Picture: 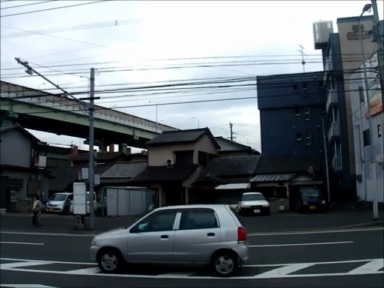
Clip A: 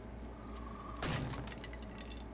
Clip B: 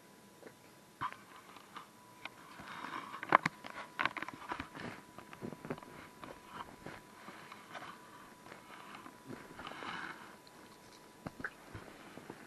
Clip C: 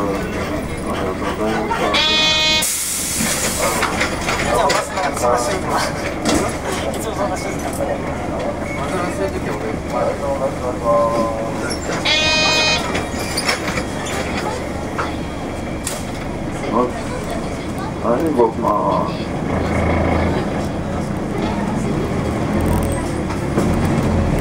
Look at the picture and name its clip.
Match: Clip C